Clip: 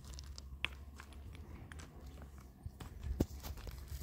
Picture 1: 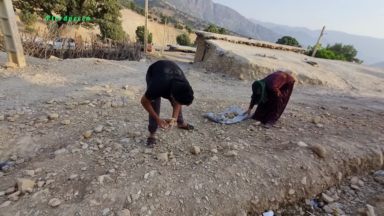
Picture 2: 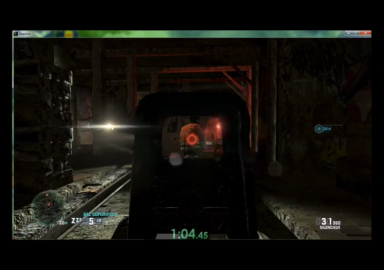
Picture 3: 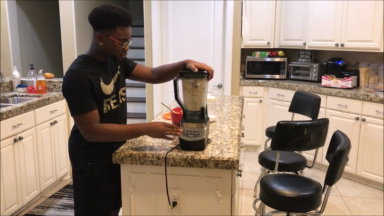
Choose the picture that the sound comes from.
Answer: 1